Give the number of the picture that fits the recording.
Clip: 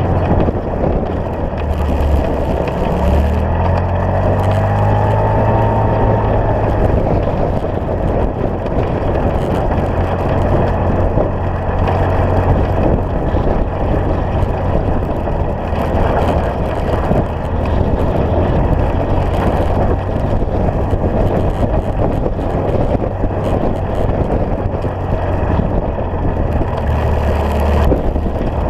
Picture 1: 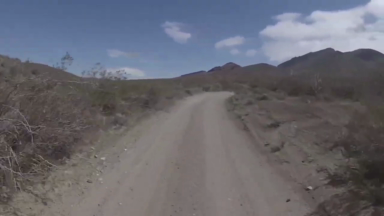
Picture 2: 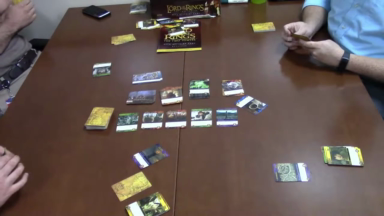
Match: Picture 1